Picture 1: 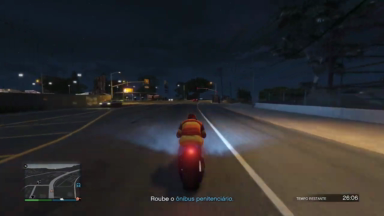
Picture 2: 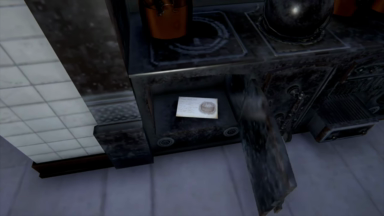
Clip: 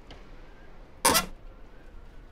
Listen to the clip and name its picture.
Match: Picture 2